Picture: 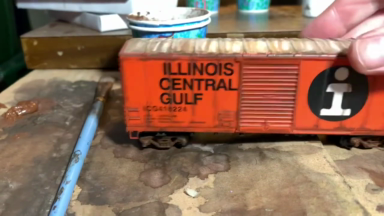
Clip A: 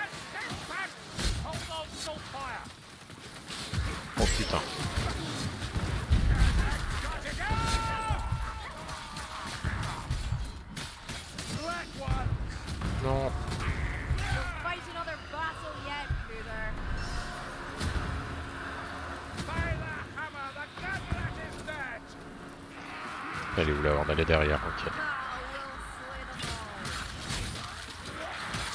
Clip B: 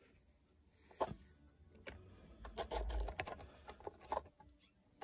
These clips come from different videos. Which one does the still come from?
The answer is B